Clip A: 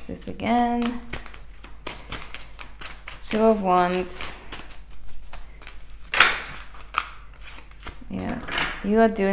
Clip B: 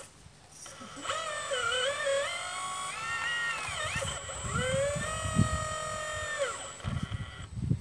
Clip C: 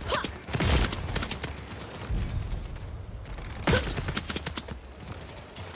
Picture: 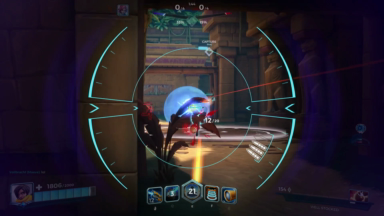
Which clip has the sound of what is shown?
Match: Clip C